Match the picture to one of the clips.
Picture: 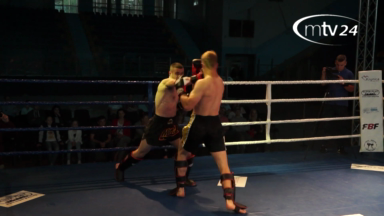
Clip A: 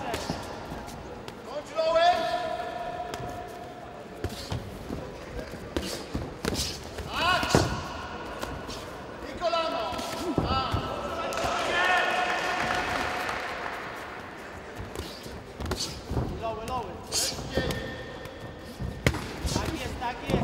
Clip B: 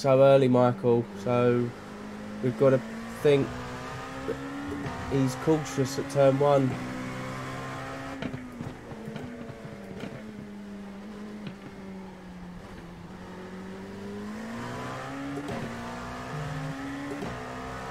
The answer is A